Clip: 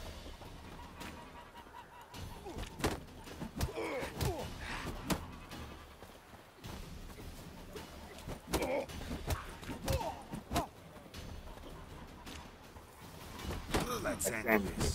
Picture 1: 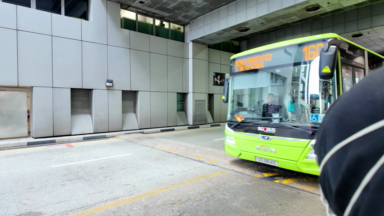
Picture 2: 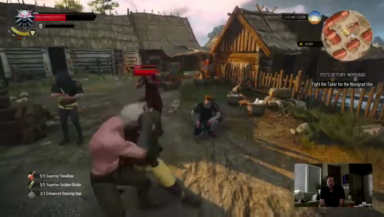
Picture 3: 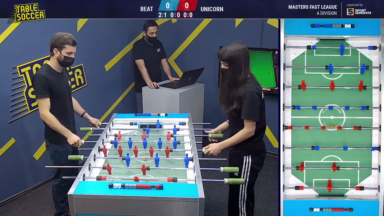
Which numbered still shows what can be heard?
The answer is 2